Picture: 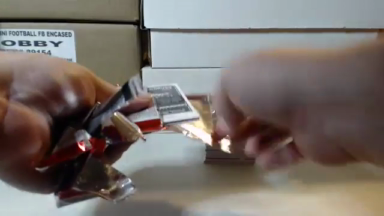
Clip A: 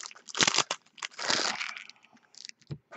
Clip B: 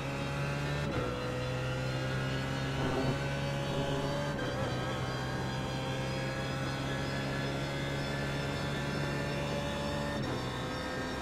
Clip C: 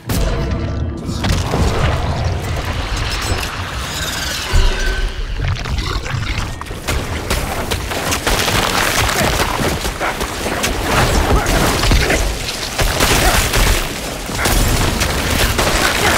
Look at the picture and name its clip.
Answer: A